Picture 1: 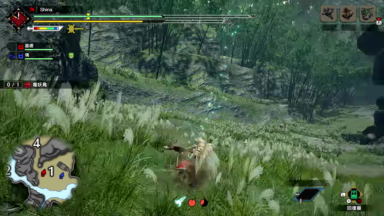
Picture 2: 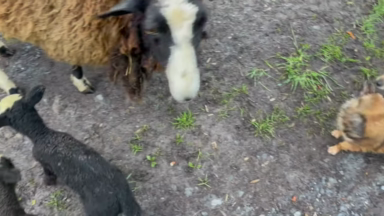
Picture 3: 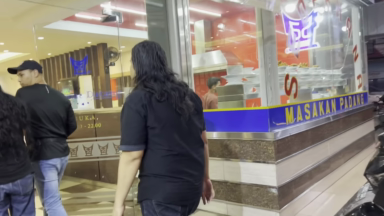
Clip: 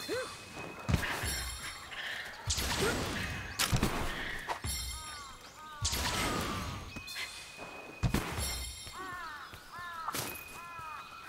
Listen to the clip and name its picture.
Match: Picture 1